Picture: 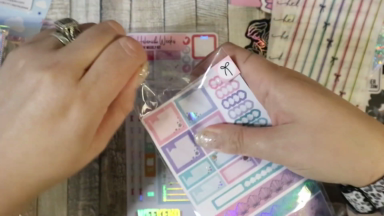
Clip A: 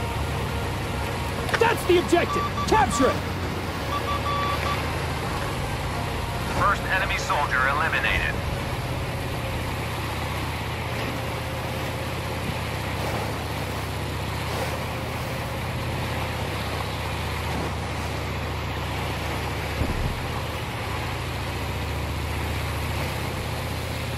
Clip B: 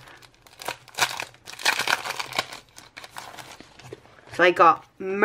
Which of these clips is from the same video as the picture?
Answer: B